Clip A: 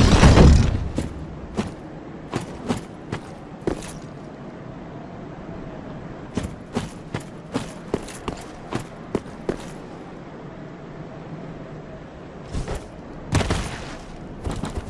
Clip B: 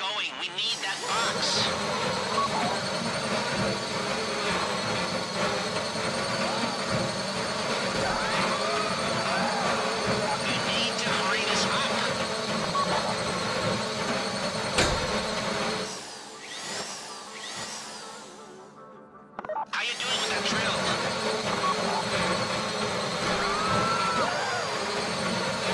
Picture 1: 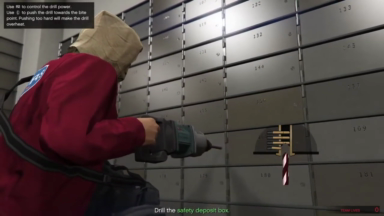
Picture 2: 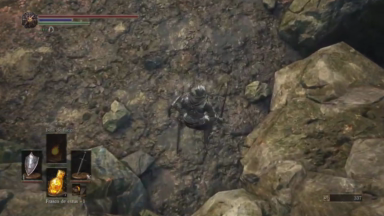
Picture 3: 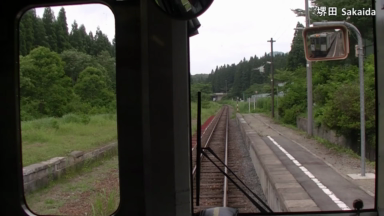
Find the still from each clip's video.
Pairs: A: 2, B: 1